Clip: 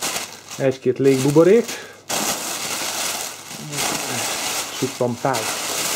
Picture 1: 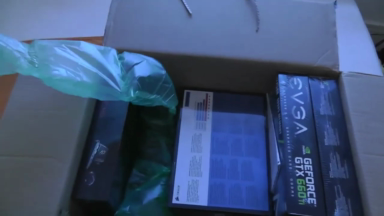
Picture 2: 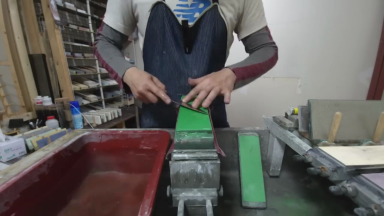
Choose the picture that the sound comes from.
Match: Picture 1